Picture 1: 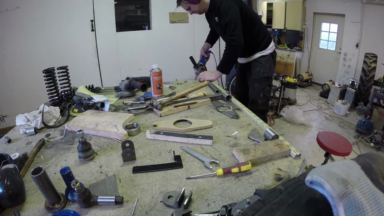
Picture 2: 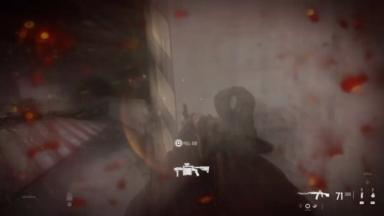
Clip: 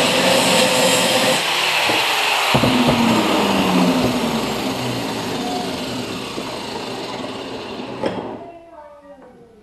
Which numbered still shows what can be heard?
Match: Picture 1